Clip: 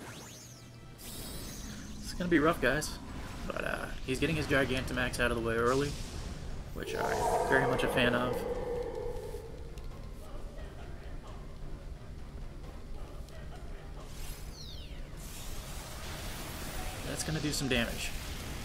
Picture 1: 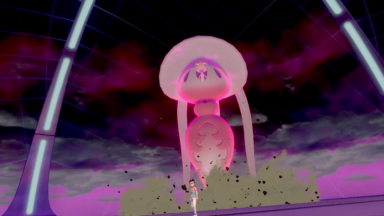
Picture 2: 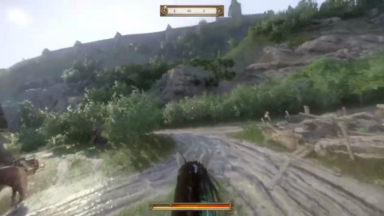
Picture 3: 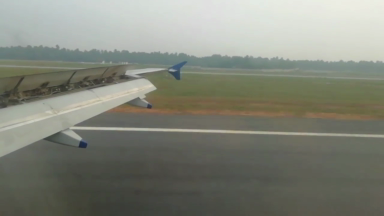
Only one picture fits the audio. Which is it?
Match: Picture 1